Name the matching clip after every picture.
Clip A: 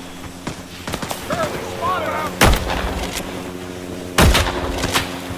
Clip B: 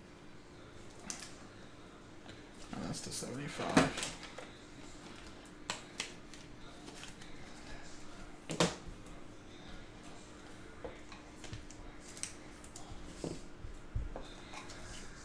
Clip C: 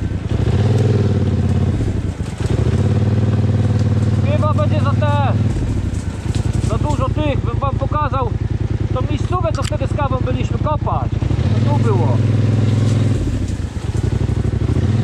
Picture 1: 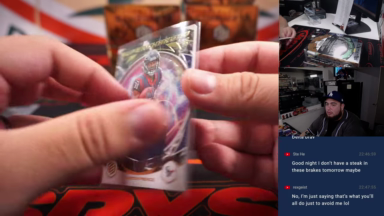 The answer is B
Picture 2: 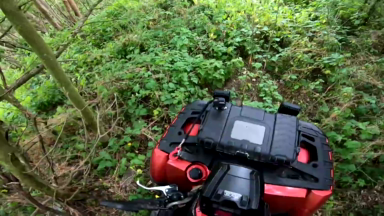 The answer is C